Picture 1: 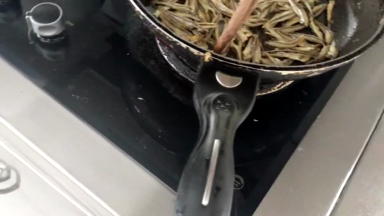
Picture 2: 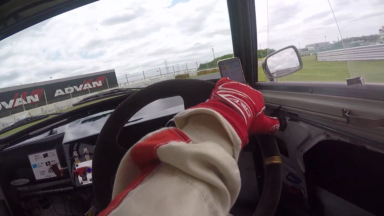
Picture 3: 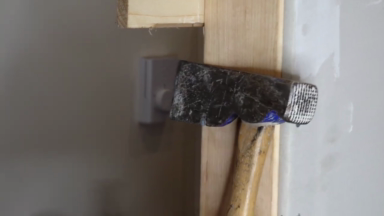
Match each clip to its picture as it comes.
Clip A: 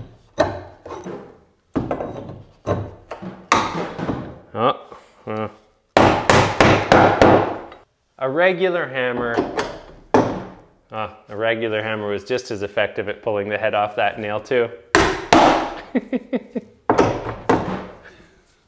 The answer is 3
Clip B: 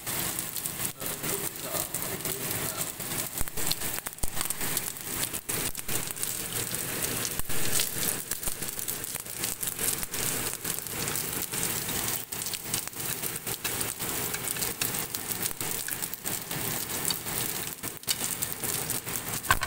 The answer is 1